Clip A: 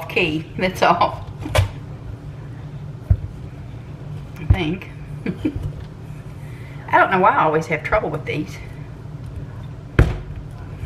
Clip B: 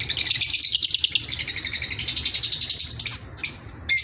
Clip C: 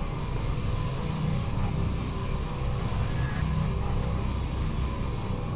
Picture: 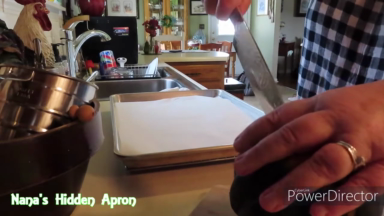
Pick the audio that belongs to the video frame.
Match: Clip A